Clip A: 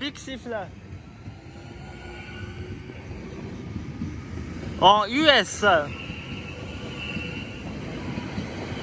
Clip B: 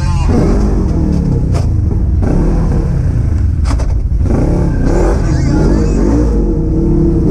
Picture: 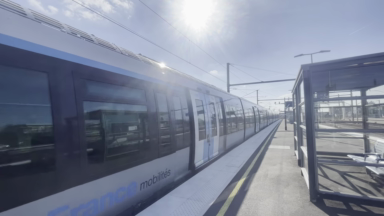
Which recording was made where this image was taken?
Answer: A